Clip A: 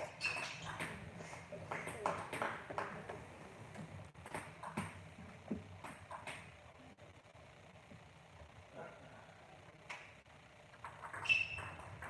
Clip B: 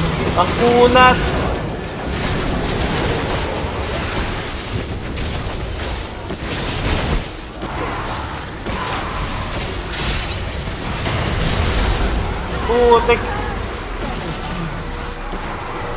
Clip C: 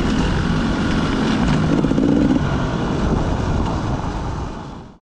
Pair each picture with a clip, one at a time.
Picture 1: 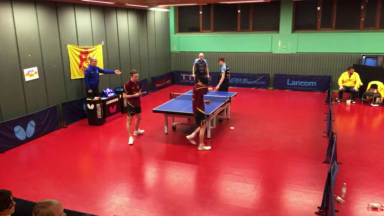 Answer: A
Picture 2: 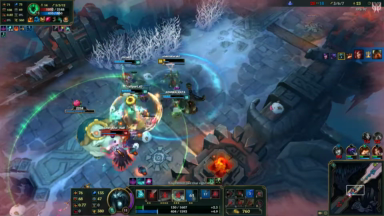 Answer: B